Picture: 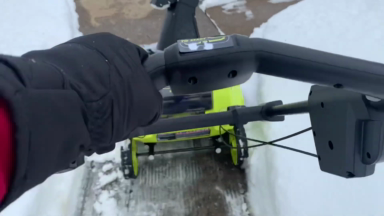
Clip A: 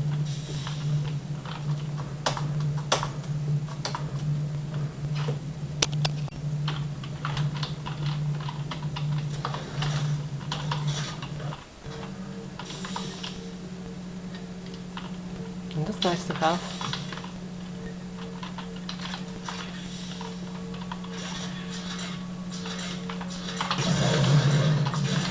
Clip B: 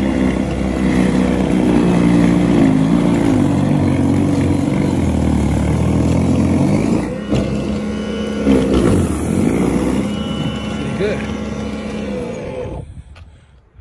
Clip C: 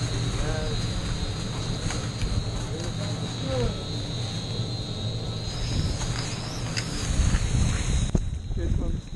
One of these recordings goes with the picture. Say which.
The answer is B